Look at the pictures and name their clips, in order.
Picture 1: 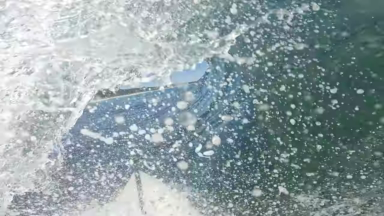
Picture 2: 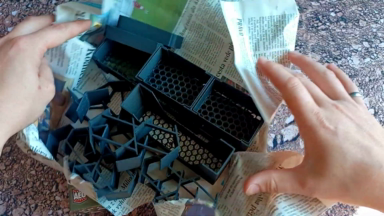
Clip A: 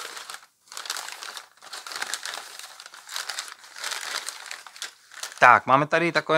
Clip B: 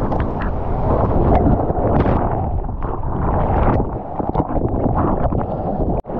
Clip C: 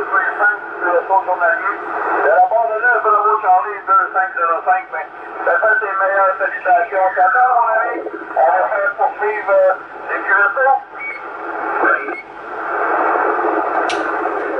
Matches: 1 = B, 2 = A